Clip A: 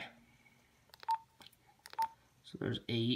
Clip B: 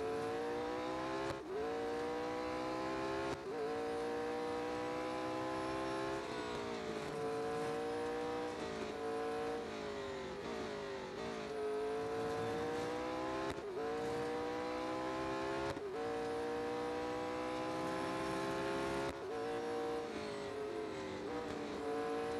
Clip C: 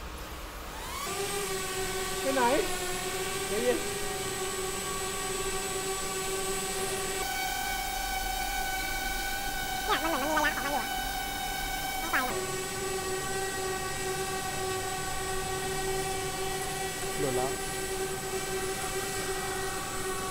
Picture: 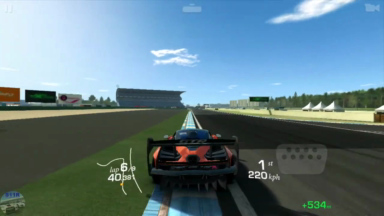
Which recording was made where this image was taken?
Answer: B